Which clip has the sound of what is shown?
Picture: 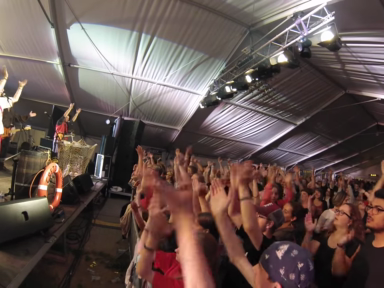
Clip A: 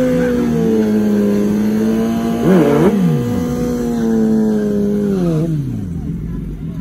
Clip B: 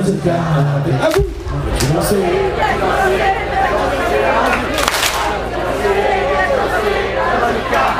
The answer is B